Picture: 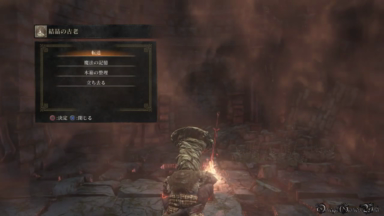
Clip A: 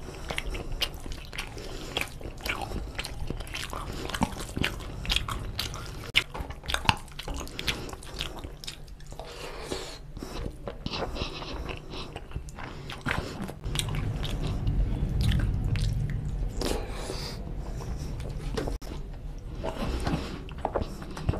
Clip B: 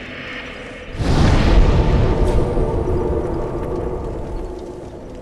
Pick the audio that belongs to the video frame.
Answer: B